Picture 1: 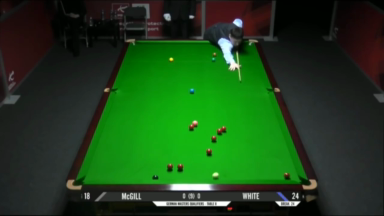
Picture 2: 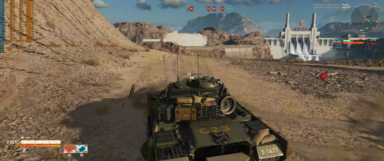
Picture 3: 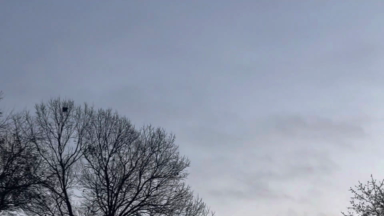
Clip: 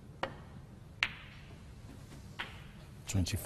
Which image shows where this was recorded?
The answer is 1